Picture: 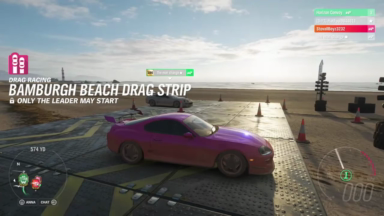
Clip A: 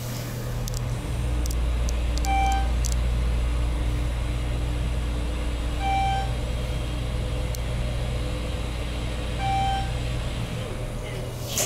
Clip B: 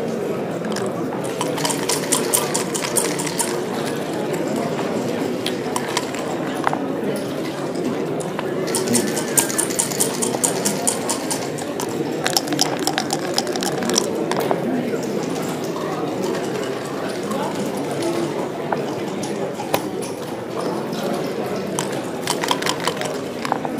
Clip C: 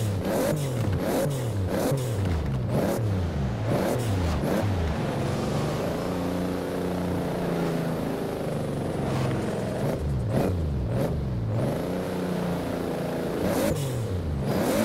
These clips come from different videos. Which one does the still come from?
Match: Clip C